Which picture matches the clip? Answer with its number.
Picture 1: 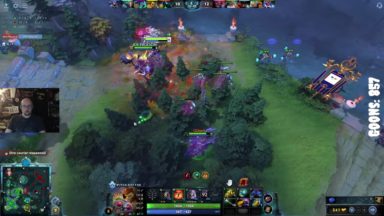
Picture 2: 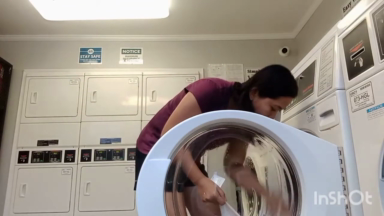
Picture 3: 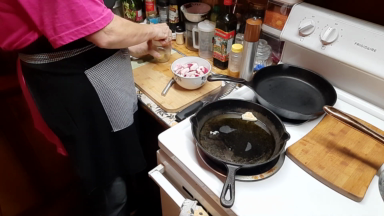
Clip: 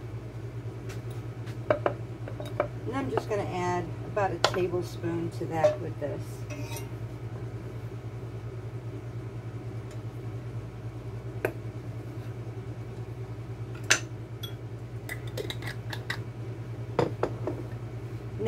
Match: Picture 3